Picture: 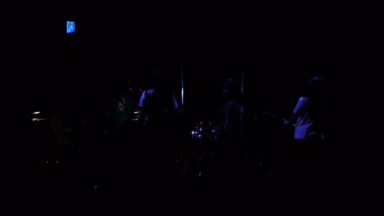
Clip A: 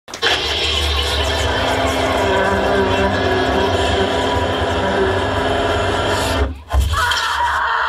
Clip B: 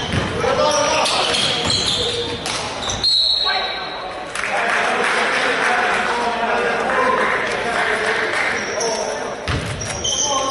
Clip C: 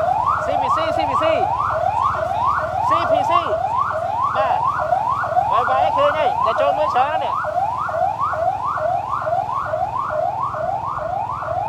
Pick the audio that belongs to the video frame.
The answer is A